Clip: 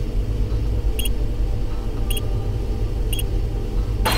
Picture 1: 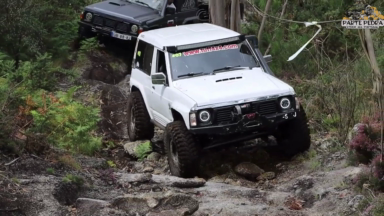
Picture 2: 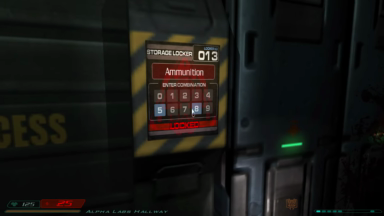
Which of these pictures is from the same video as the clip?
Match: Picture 2